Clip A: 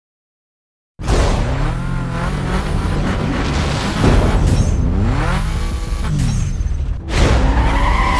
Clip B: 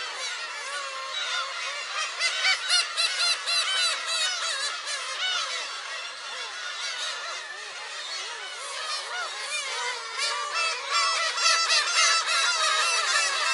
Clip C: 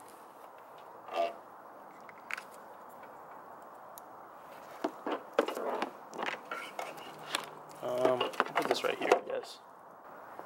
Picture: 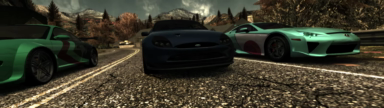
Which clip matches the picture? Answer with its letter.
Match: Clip A